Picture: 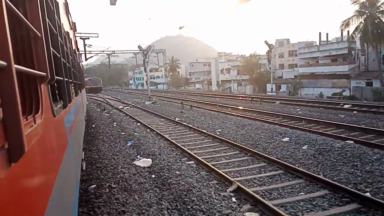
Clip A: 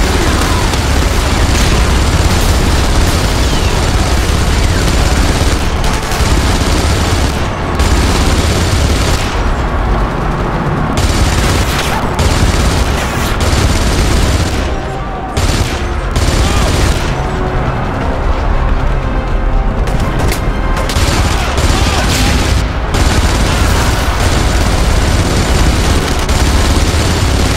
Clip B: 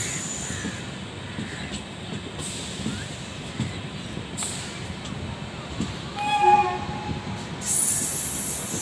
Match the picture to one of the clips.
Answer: B